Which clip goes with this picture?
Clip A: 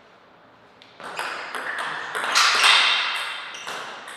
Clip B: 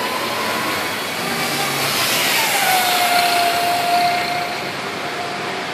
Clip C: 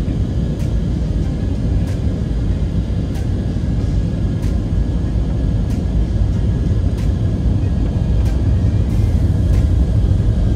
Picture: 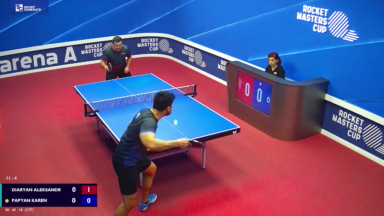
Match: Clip A